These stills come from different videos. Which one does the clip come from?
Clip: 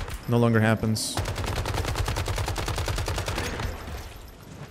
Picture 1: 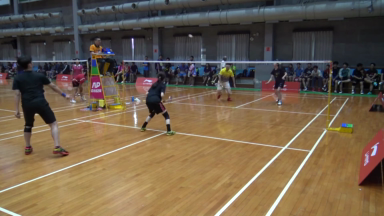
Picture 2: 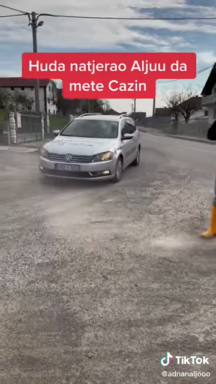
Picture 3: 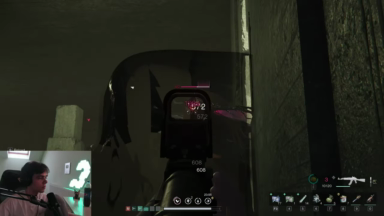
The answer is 3